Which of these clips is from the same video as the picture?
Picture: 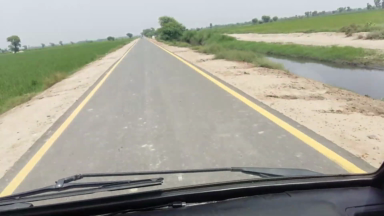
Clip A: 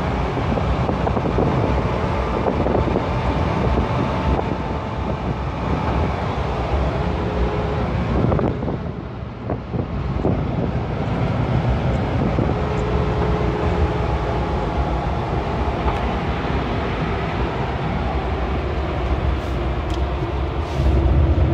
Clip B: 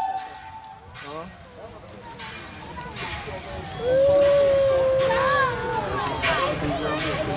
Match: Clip A